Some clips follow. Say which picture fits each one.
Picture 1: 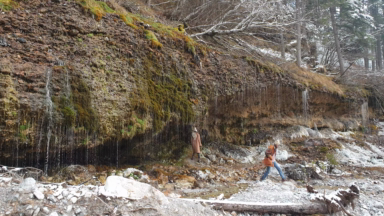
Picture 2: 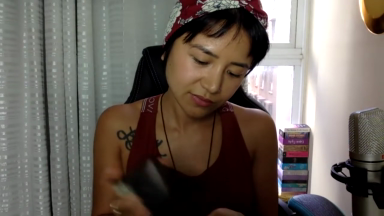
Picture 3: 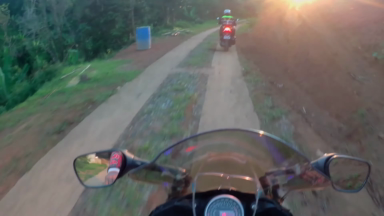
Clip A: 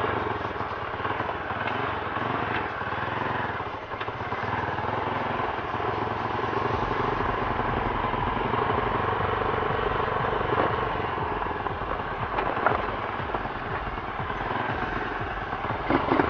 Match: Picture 3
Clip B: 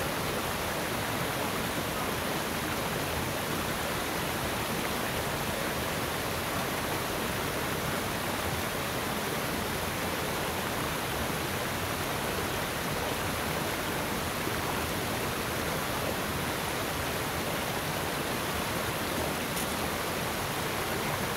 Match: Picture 1